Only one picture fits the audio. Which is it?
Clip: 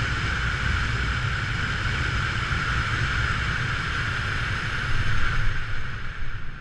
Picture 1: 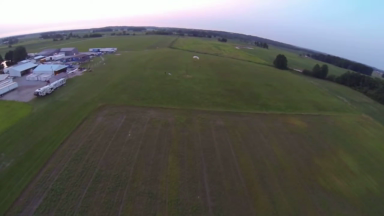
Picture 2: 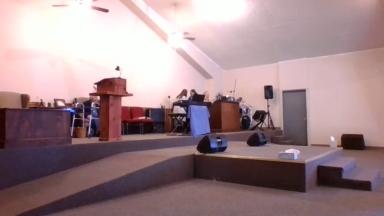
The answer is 1